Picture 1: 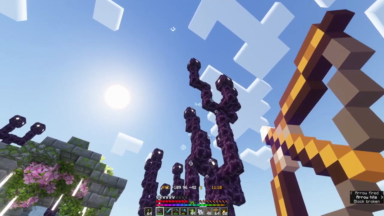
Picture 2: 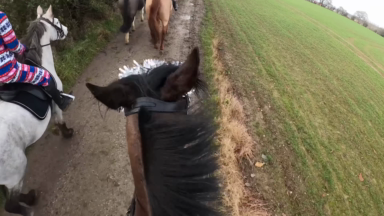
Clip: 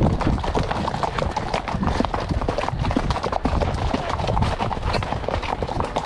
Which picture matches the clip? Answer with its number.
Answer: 2